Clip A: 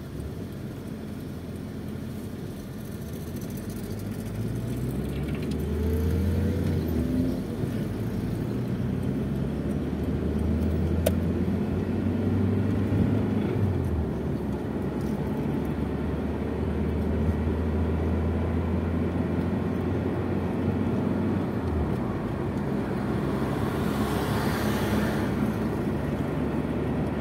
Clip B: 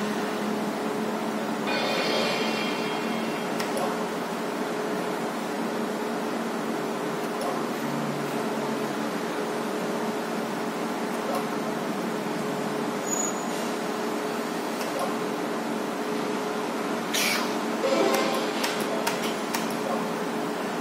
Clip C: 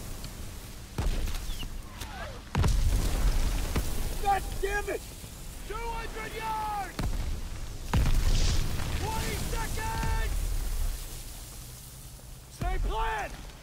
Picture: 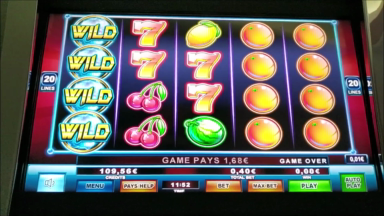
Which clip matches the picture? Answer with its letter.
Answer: B